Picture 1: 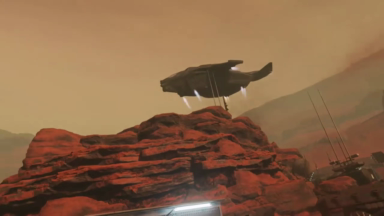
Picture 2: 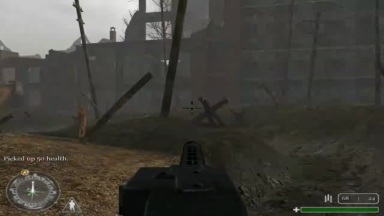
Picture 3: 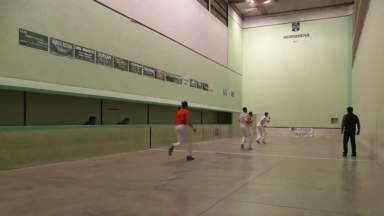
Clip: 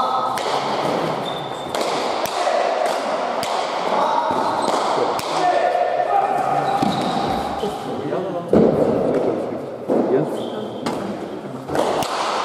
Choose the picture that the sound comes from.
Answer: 3